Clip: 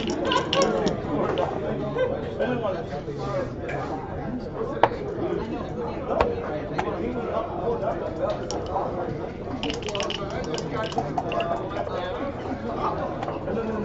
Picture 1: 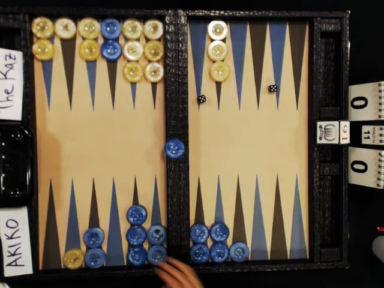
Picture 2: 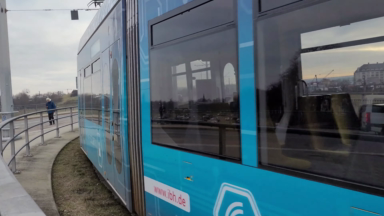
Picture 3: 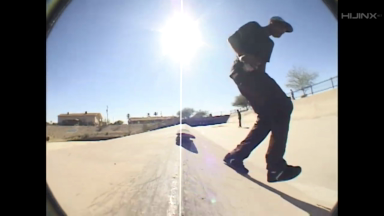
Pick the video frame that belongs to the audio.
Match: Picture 1